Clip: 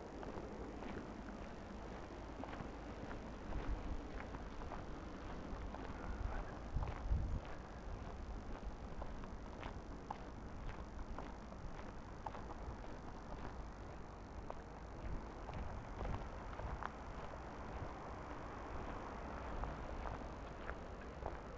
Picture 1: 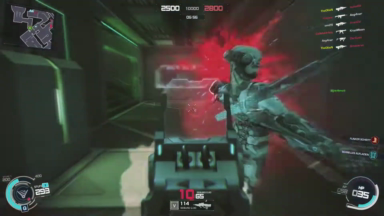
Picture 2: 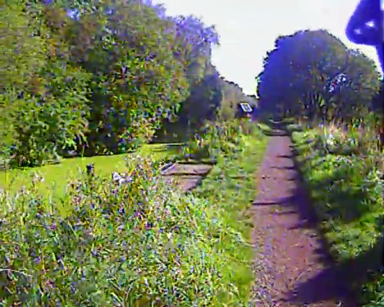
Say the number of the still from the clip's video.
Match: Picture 2